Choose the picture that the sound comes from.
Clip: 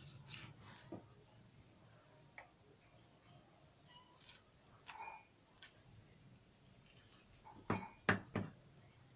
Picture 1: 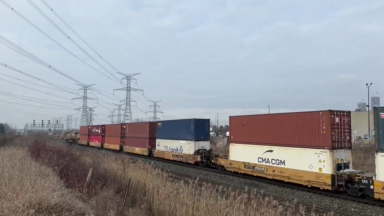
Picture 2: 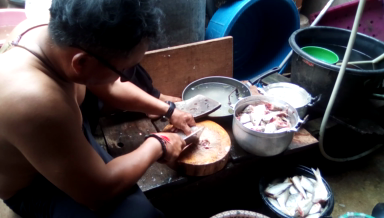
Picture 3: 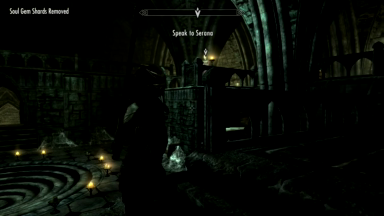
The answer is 2